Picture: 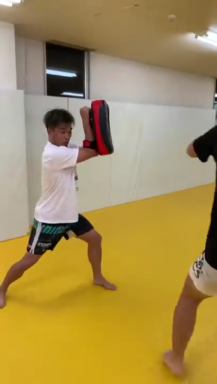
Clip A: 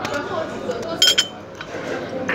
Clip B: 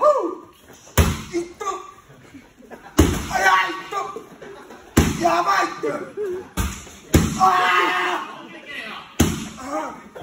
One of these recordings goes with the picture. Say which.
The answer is B